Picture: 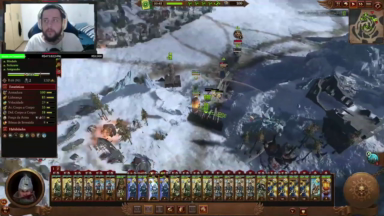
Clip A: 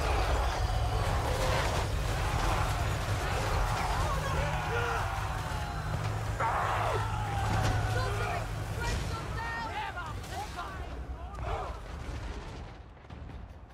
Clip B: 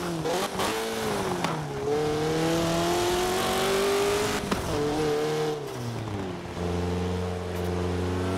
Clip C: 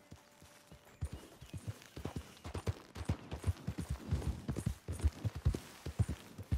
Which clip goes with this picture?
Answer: A